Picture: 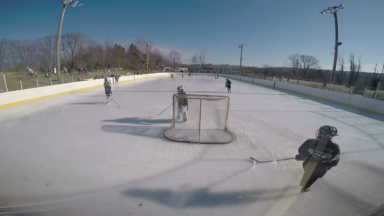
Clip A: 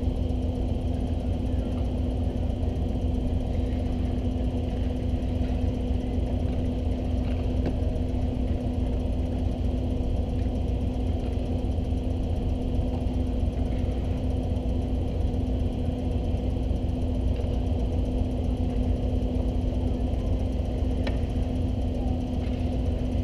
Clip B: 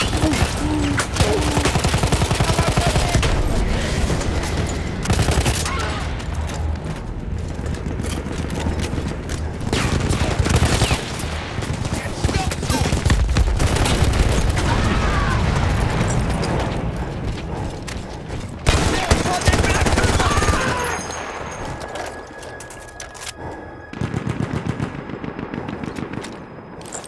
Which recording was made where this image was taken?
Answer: A